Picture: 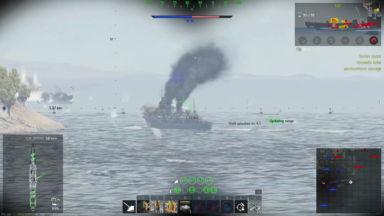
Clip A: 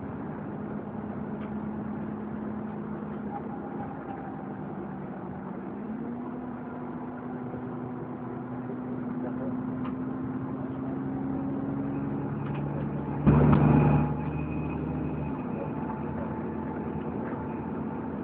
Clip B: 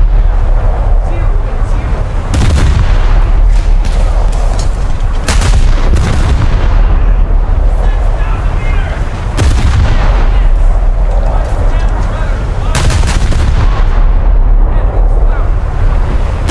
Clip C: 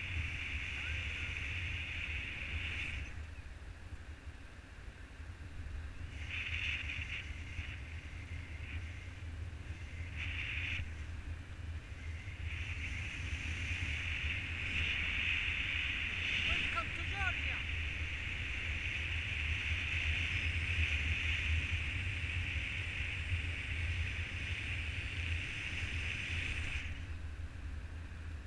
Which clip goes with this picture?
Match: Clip B